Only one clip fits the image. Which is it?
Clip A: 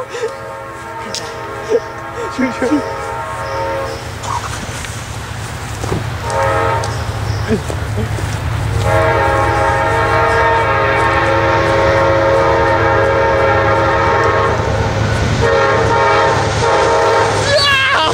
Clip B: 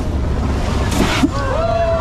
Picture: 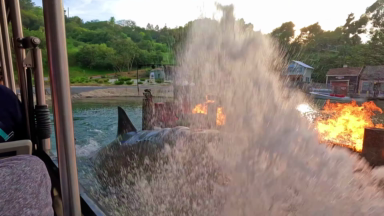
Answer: B